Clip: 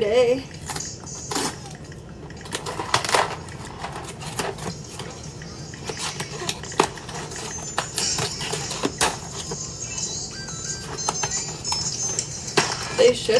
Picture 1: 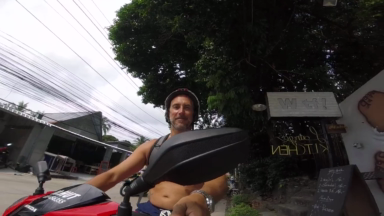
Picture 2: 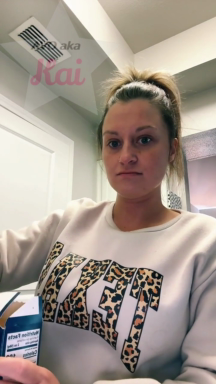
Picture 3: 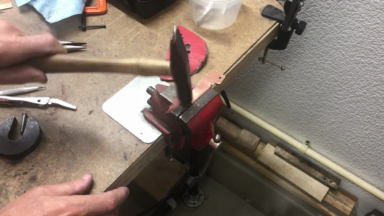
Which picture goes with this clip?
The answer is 2